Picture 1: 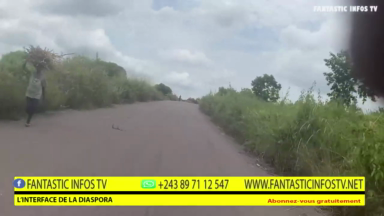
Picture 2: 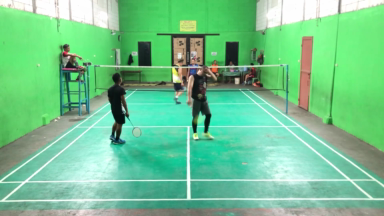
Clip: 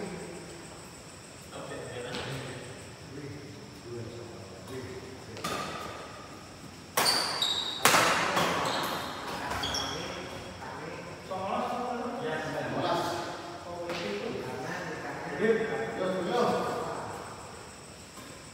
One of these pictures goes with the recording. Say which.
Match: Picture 2